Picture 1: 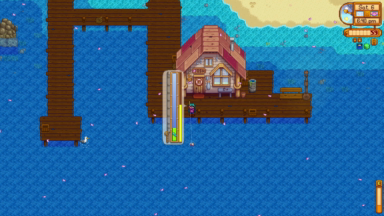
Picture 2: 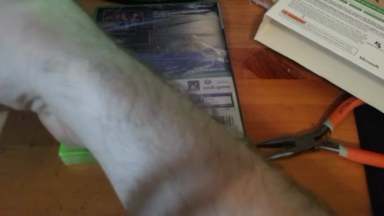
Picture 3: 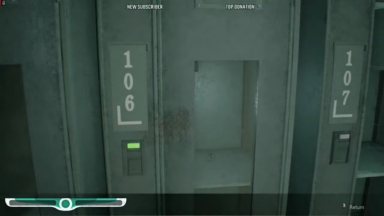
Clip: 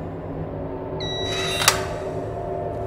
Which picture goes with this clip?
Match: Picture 3